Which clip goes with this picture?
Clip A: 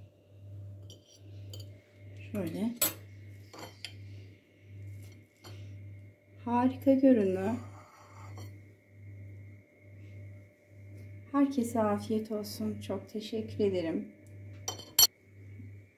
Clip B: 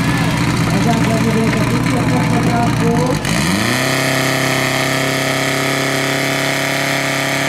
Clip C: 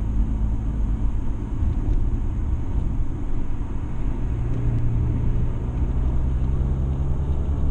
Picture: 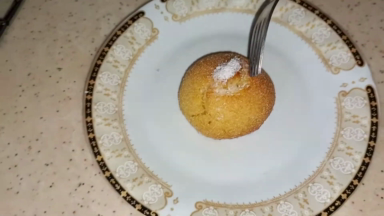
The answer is A